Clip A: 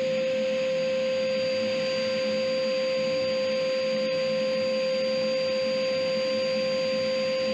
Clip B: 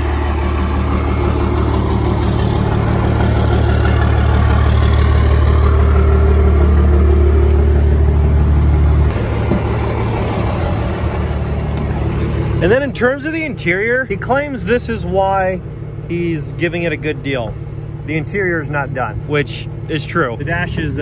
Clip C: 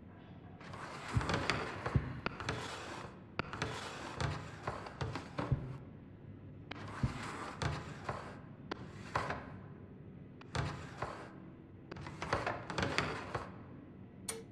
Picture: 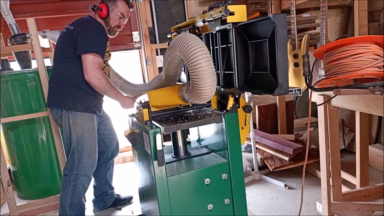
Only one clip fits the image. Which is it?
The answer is A